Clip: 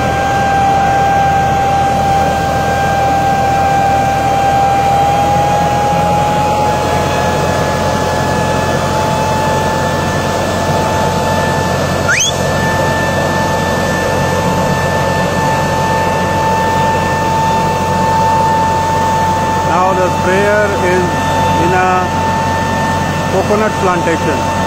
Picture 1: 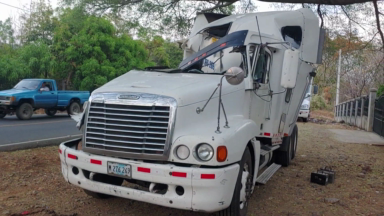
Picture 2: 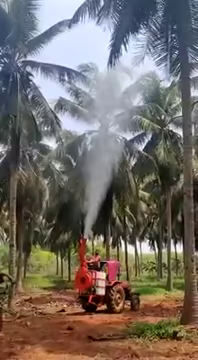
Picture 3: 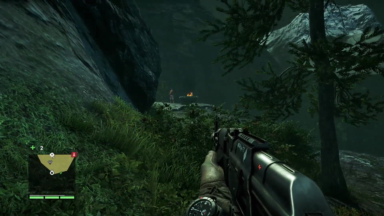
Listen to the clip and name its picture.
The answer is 2